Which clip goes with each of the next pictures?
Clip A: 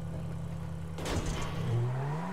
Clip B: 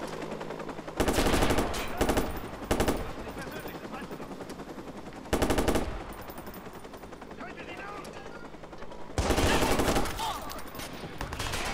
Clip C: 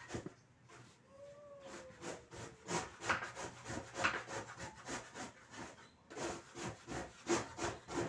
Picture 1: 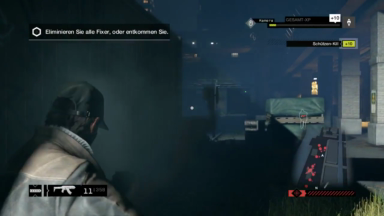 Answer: B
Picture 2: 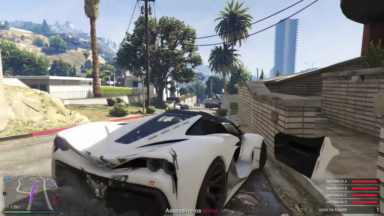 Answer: A